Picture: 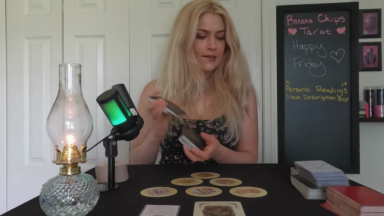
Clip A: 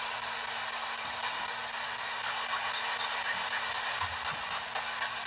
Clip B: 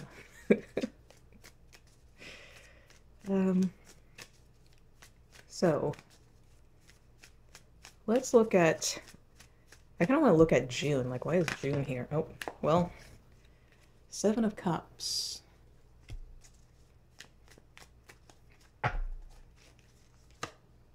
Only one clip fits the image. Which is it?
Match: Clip B